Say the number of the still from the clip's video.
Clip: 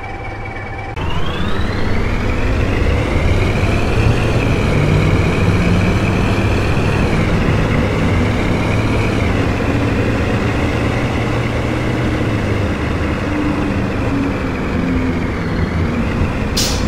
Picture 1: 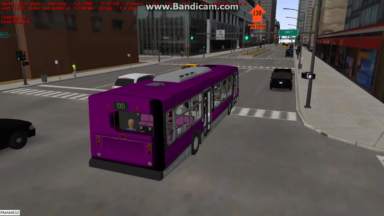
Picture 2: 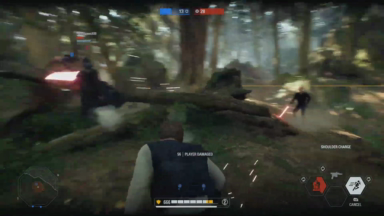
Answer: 1